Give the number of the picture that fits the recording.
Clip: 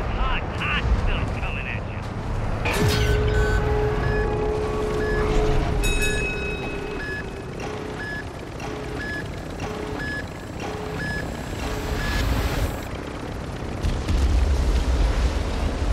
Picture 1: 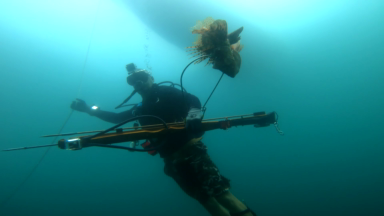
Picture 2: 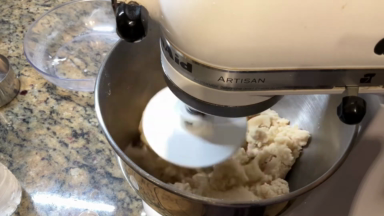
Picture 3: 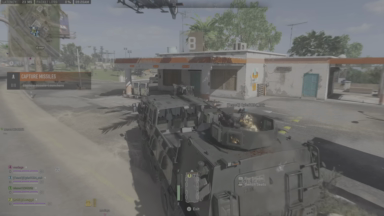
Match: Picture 3